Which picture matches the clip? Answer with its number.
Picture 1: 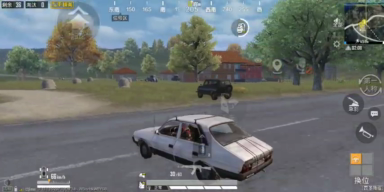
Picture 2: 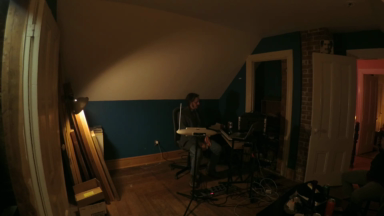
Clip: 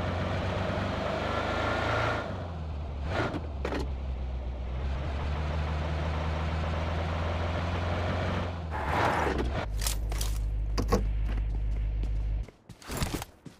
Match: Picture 1